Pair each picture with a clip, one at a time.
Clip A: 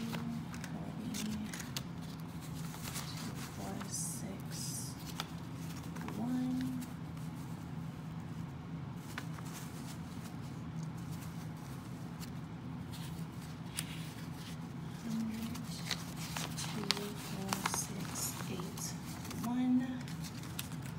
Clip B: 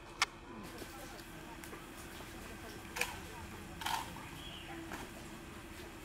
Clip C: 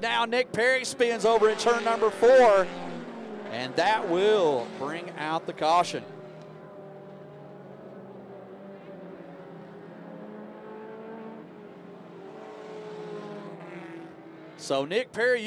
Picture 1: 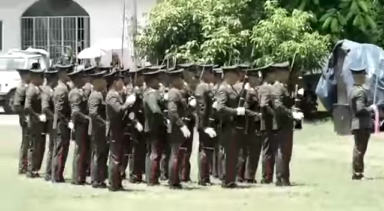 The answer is B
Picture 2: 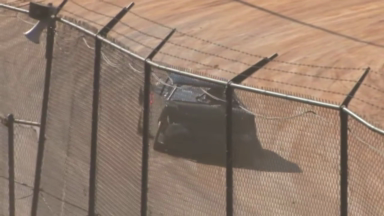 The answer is C